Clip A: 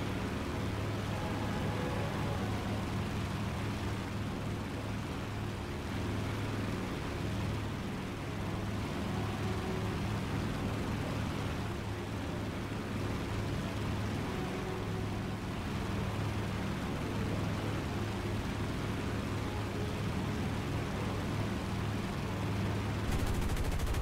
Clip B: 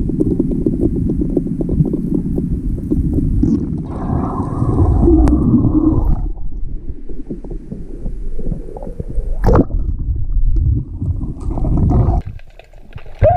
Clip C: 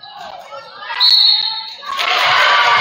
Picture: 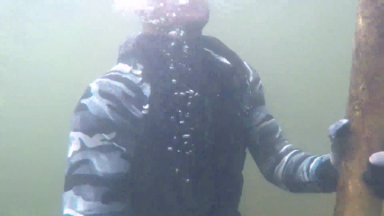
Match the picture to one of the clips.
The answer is B